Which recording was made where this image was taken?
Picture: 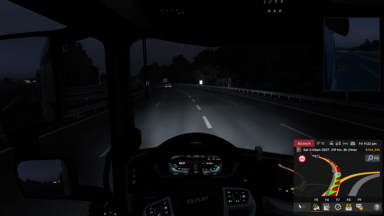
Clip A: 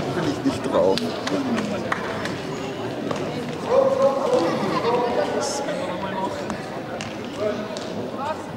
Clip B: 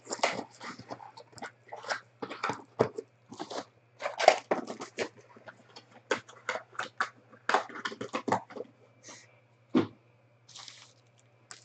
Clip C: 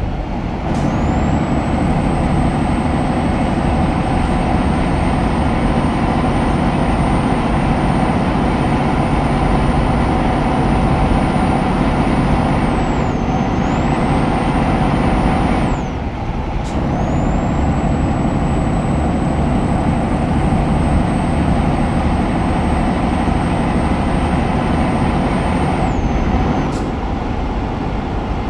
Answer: C